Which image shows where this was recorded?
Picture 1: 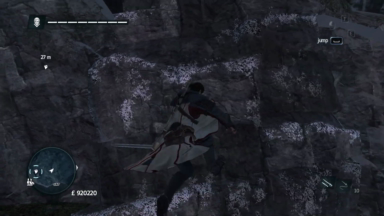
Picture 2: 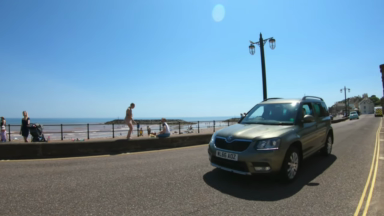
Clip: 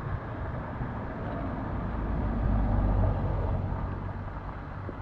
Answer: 2